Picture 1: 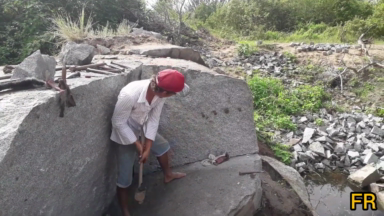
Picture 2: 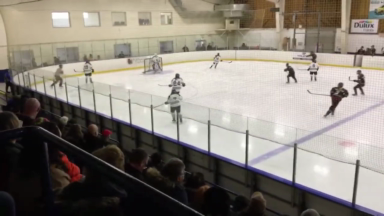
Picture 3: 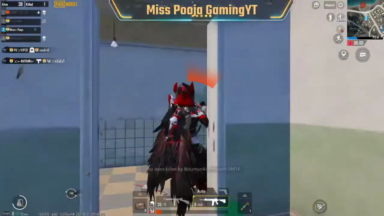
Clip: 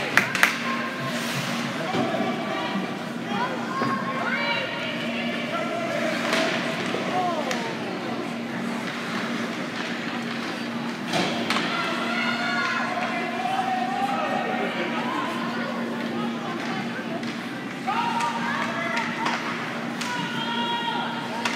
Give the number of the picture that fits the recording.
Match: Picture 2